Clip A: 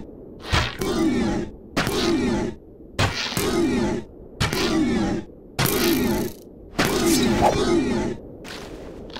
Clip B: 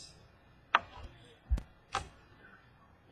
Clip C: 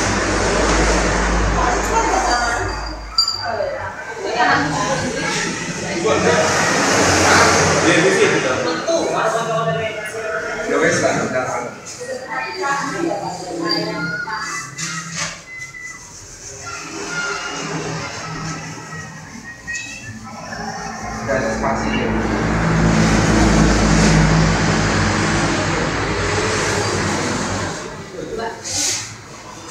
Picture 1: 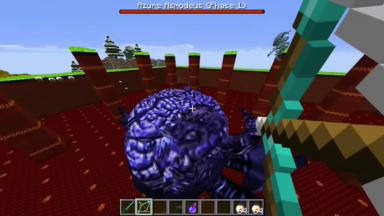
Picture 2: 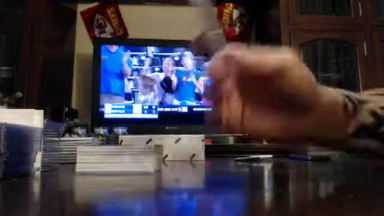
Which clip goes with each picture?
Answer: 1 A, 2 B